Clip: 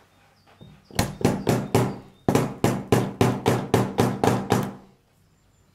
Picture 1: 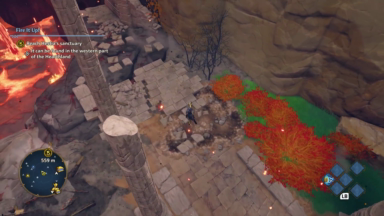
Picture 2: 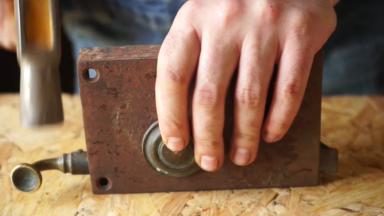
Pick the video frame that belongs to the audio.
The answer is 2